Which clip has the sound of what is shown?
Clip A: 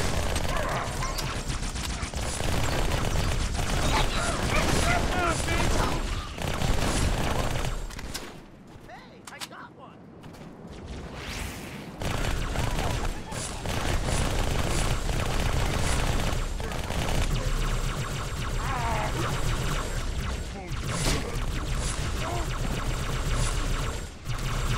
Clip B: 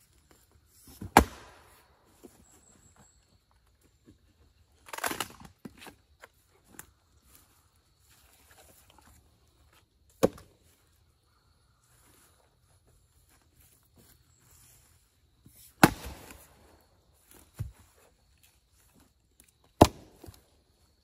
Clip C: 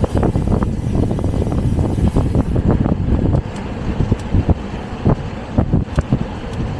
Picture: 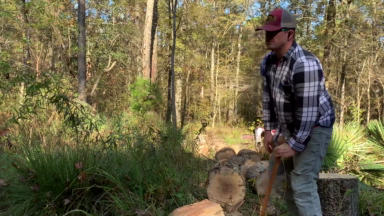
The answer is B